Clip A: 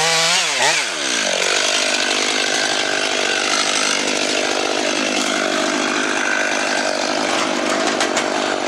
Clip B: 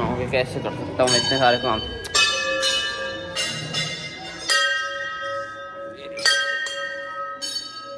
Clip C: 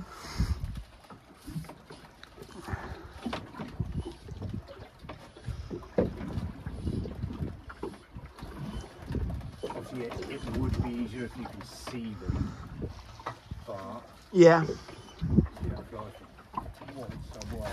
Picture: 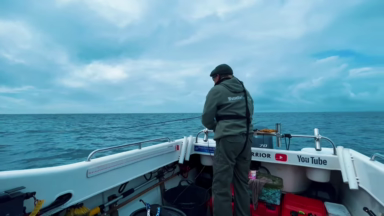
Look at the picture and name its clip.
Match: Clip C